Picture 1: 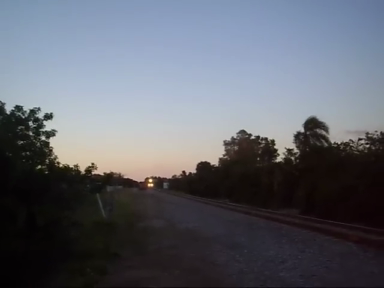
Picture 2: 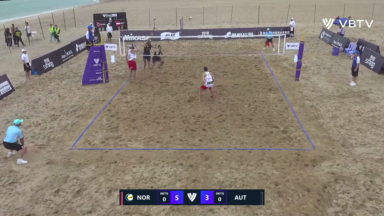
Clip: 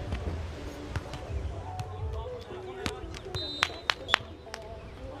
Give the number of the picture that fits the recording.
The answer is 2